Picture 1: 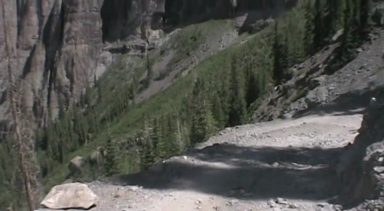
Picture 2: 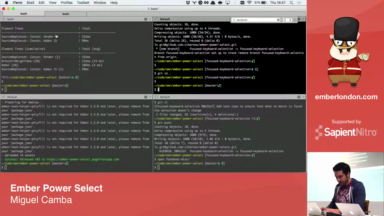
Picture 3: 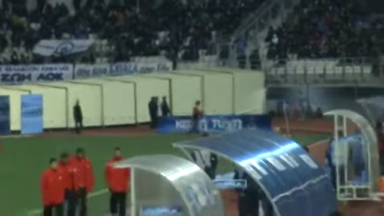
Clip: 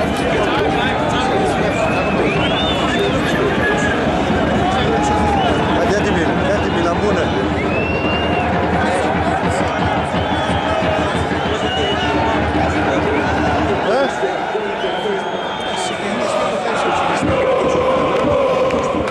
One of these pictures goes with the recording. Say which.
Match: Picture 3